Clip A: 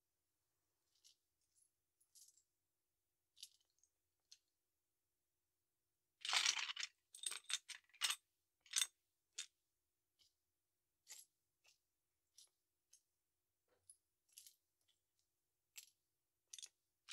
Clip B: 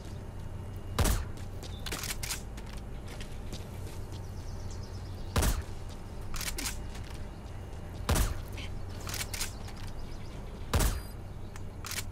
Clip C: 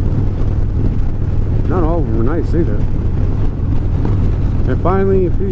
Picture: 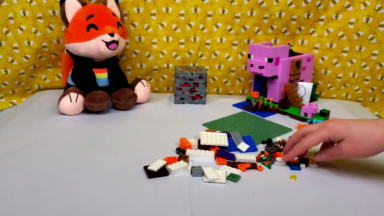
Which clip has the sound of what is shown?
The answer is A